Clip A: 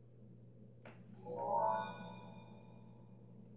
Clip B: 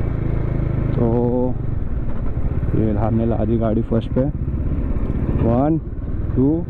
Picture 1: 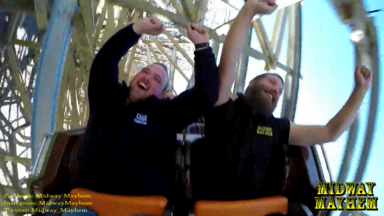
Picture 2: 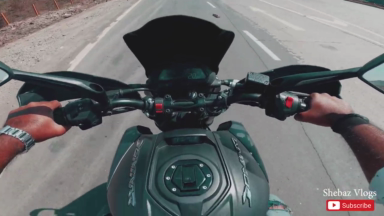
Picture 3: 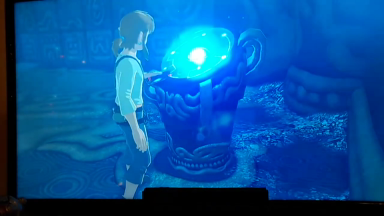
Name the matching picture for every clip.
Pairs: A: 3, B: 2